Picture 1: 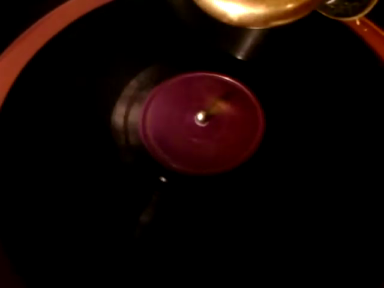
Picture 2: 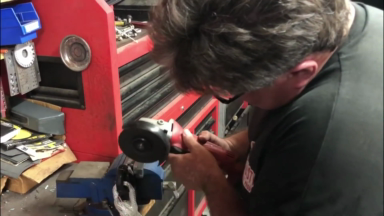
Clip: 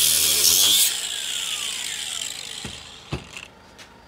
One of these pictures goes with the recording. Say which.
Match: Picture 2